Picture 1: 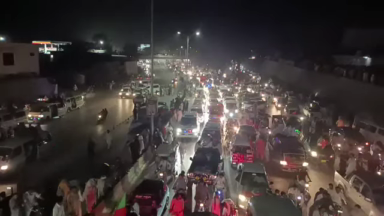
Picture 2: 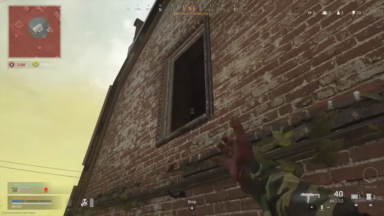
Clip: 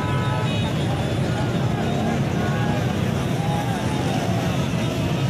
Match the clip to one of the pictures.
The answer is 1